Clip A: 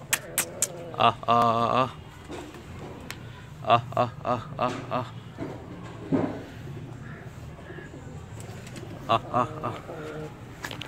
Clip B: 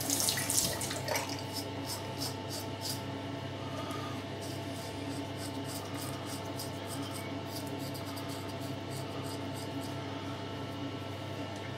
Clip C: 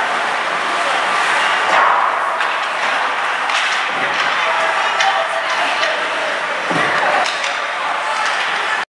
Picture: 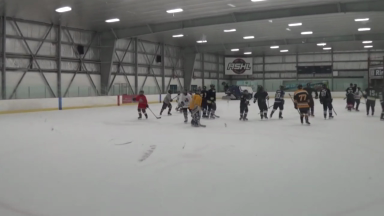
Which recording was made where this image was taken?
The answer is C